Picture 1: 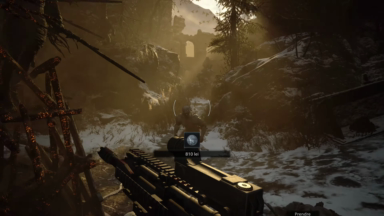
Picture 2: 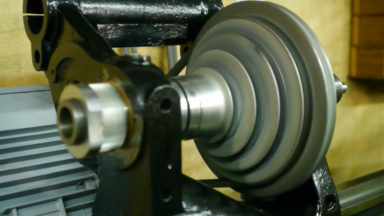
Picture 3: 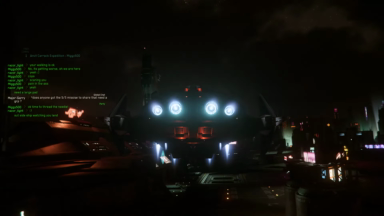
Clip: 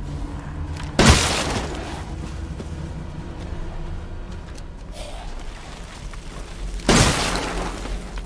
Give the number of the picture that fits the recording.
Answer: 1